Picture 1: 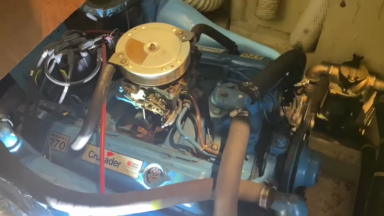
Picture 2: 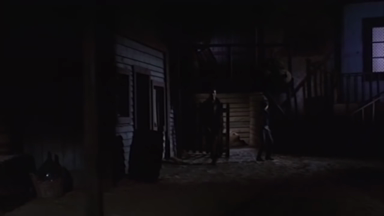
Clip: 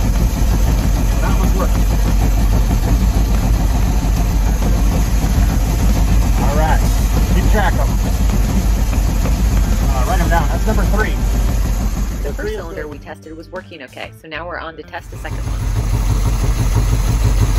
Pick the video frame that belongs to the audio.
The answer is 1